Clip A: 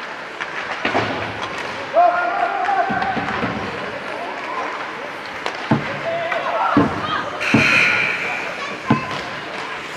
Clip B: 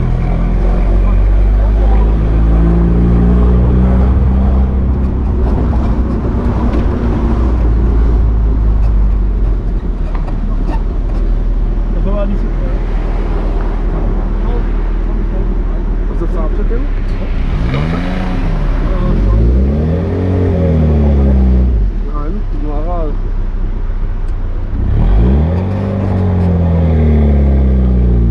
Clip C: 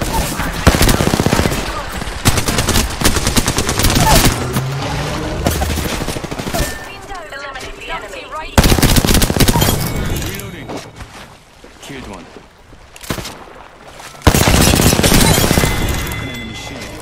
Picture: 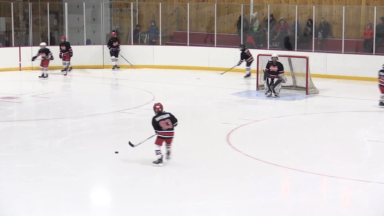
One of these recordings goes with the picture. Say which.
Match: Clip A